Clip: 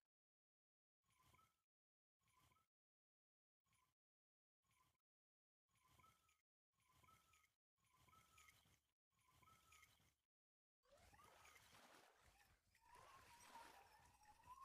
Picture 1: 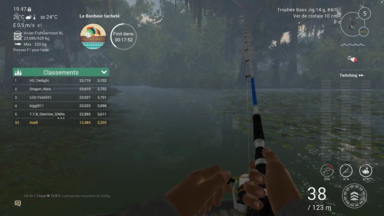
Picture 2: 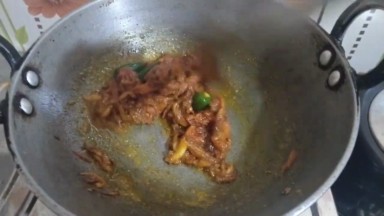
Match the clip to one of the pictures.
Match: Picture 1